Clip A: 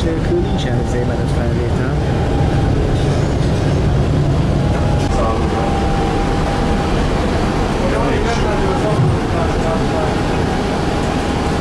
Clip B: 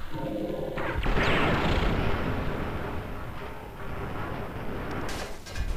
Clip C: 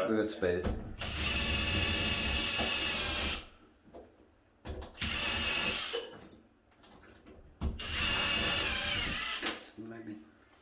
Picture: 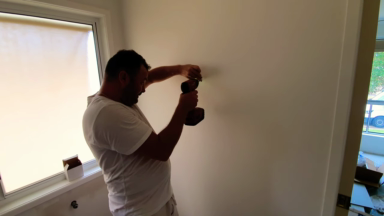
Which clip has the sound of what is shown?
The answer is C